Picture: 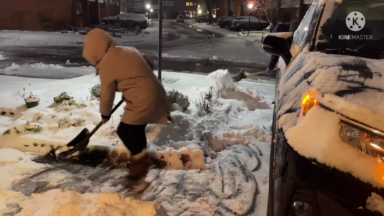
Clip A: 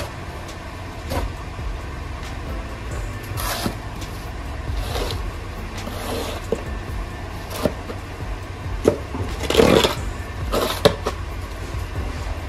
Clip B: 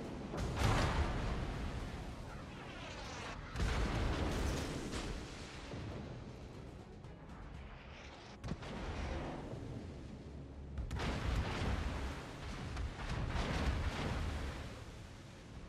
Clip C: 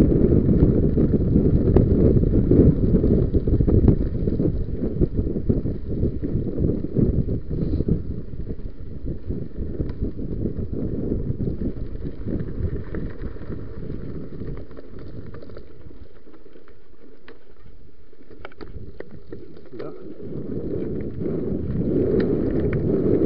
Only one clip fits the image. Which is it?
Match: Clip A